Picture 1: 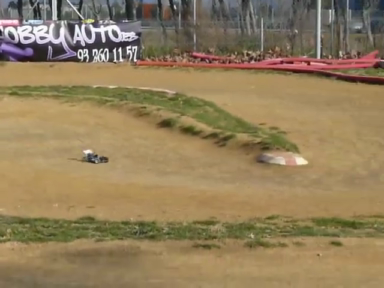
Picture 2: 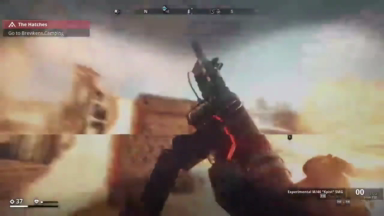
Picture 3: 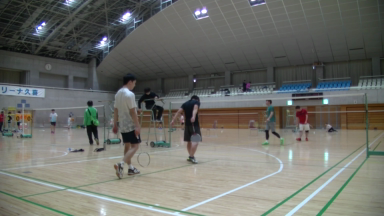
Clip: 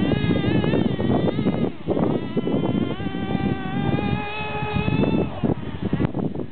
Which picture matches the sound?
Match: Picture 1